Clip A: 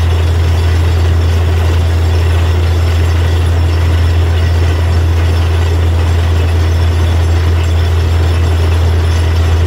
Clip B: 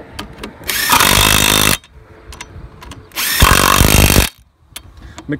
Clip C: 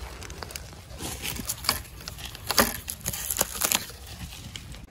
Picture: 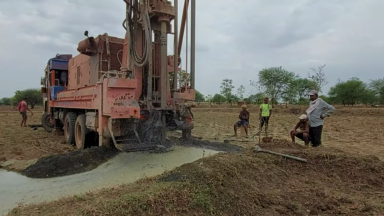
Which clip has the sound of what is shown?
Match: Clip A